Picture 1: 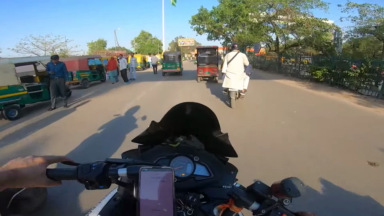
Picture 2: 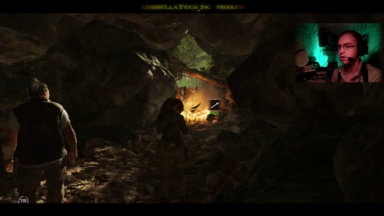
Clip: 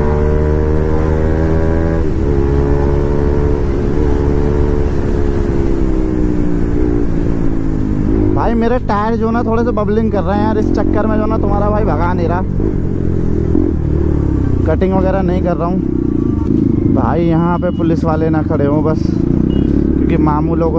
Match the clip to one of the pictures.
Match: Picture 1